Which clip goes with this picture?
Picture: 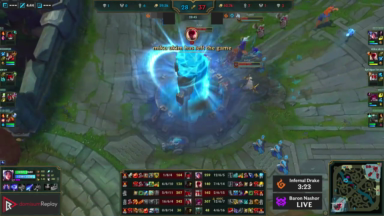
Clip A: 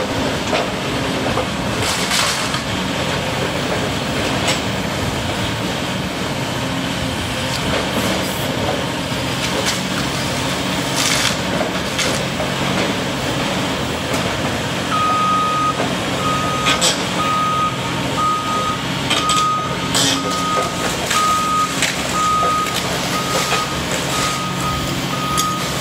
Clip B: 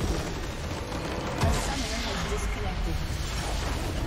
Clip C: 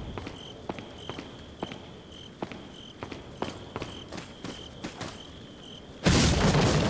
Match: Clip B